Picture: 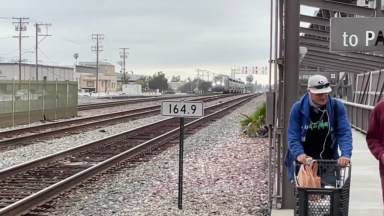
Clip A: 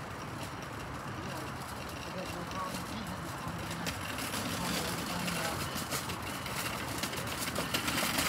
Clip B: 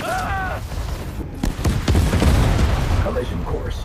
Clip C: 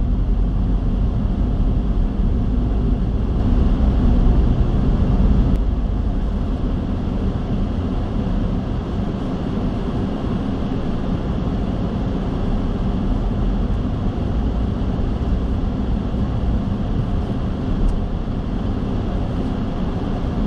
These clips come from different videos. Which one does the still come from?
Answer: A